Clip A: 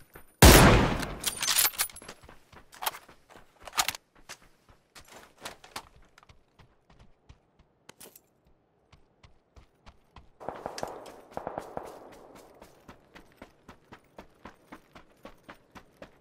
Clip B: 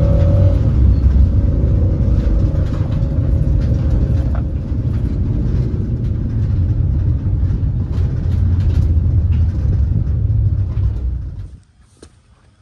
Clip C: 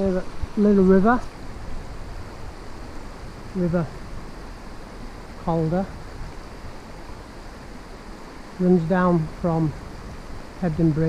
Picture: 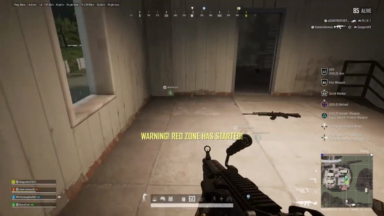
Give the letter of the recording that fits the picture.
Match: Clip A